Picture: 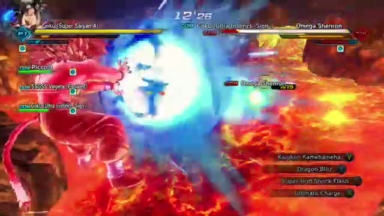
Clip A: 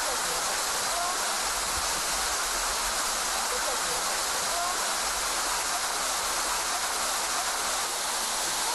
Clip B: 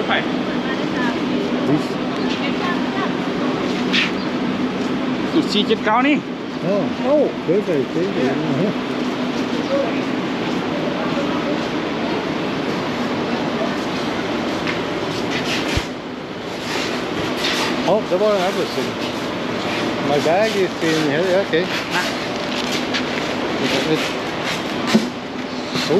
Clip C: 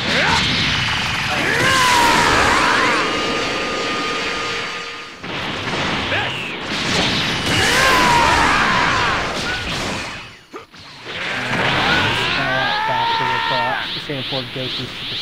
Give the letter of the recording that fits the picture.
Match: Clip C